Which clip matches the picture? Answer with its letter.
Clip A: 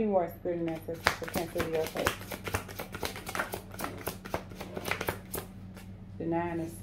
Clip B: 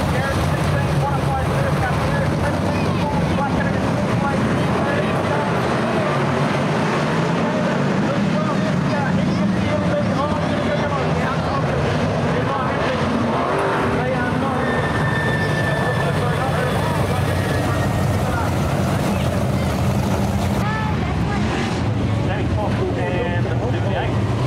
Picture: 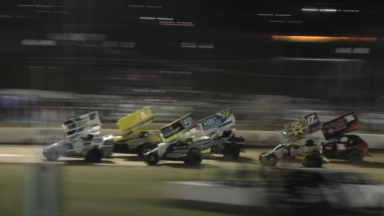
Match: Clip B